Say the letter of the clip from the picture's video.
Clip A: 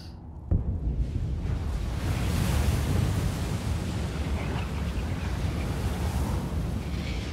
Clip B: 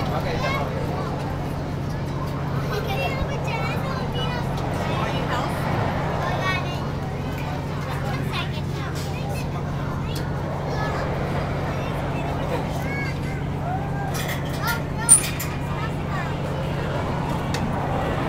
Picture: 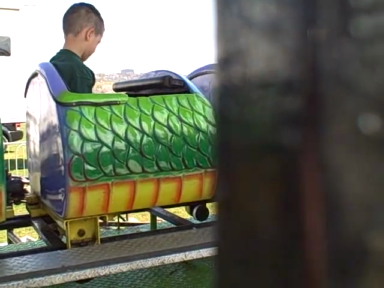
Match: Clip B